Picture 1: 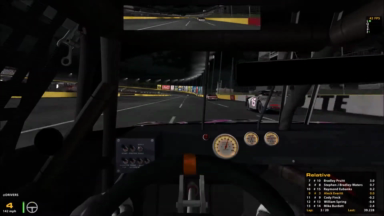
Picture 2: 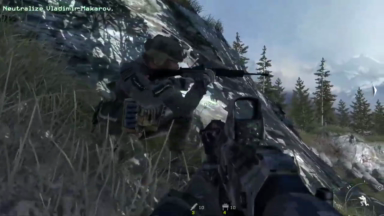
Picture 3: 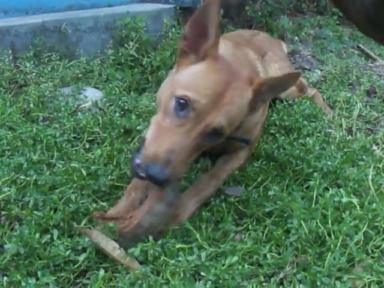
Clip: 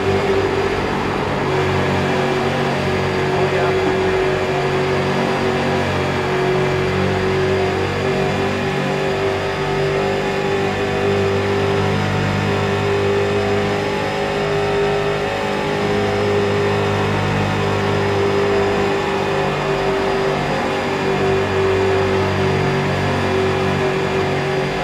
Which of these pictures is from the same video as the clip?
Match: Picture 1